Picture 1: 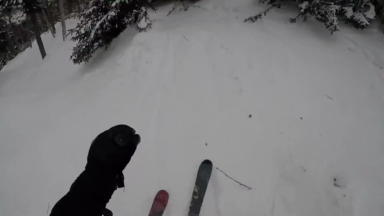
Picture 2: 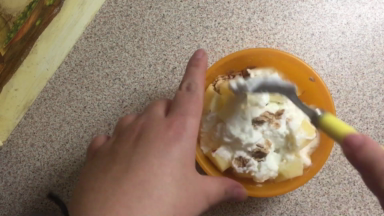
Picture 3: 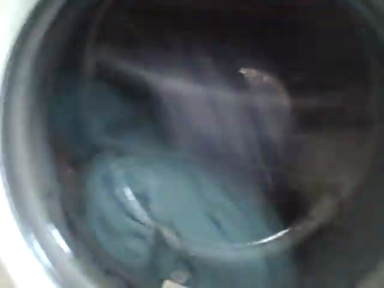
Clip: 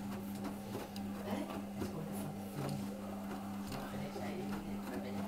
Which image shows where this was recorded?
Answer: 3